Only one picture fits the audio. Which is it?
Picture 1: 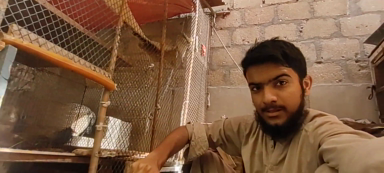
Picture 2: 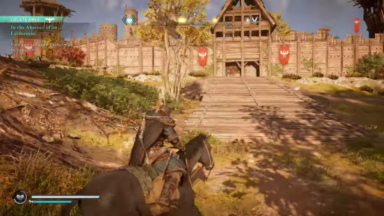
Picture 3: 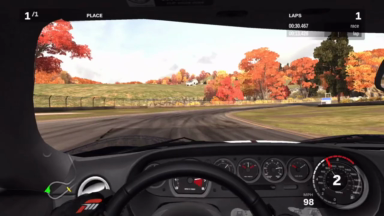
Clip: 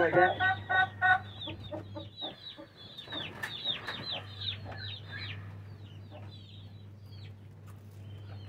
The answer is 1